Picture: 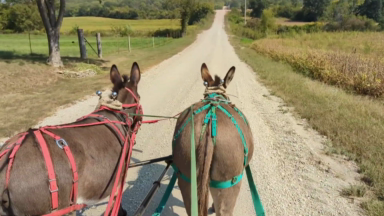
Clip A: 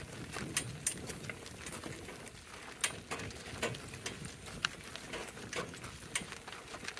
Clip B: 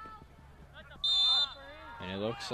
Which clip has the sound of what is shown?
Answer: A